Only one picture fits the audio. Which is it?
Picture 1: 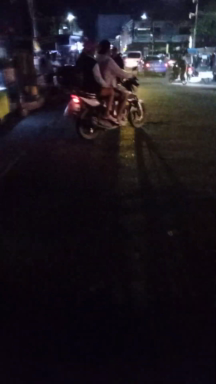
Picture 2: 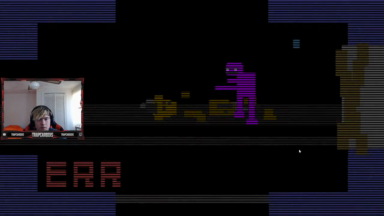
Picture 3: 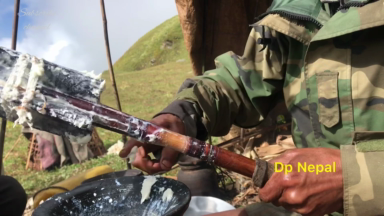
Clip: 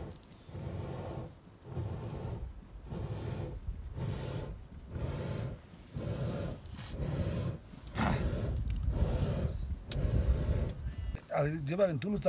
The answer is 3